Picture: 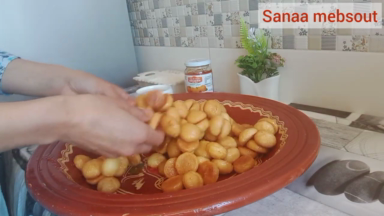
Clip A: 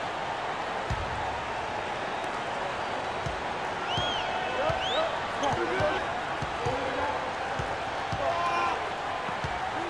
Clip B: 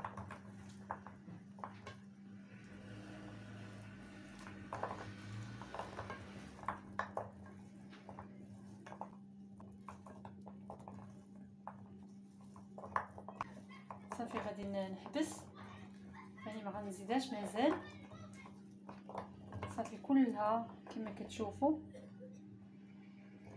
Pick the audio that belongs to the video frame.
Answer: B